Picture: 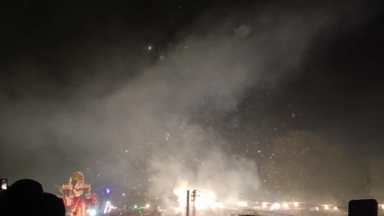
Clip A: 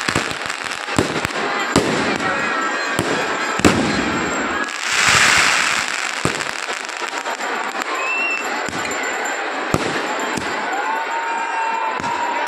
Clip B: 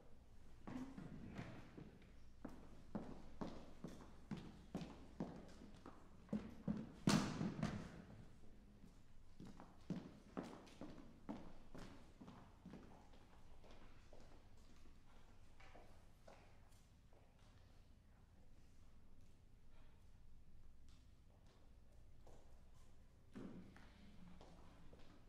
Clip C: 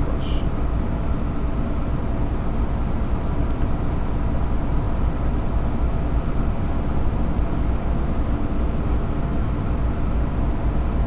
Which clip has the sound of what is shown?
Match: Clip A